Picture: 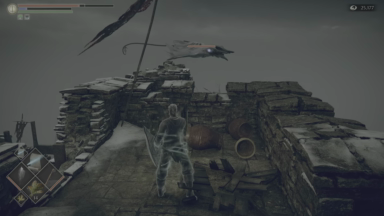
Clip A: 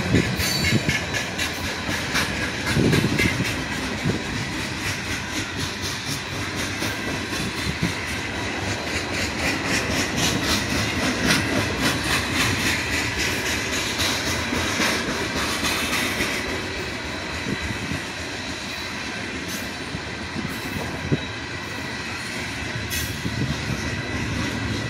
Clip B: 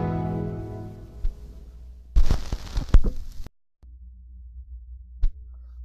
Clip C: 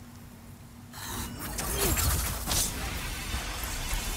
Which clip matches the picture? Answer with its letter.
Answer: C